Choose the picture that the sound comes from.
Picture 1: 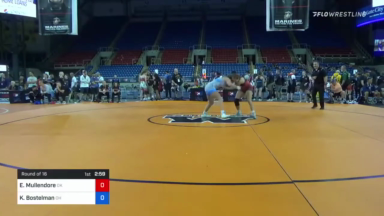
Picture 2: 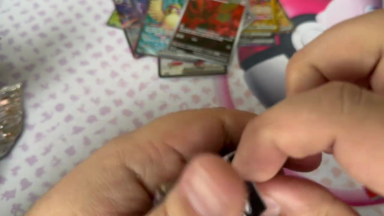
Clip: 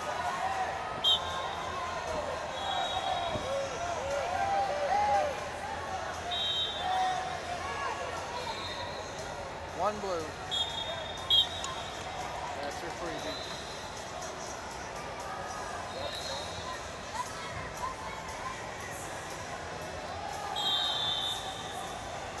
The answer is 1